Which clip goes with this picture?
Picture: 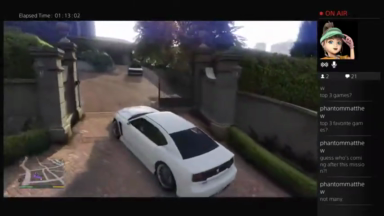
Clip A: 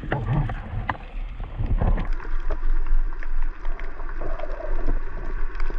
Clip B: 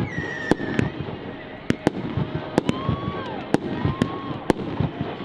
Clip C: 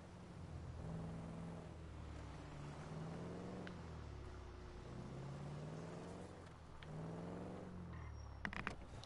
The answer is C